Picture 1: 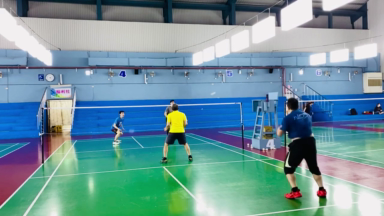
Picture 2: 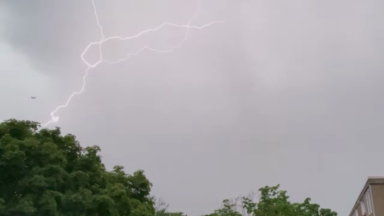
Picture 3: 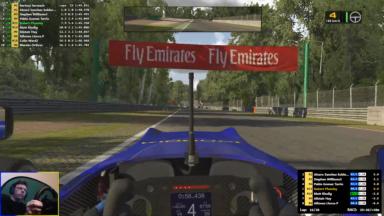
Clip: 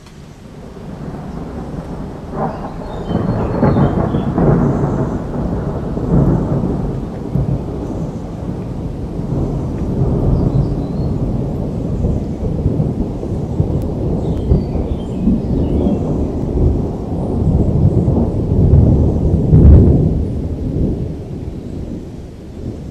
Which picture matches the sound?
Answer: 2